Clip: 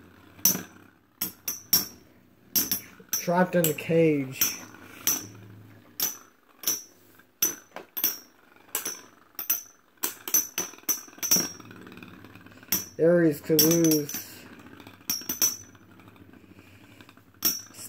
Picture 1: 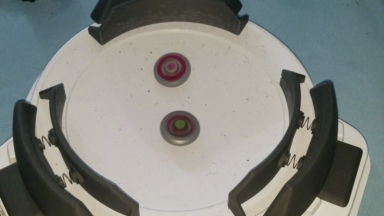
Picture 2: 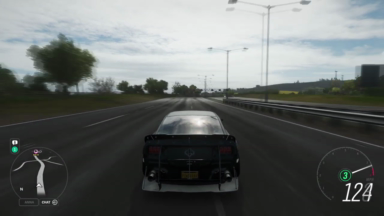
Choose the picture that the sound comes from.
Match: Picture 1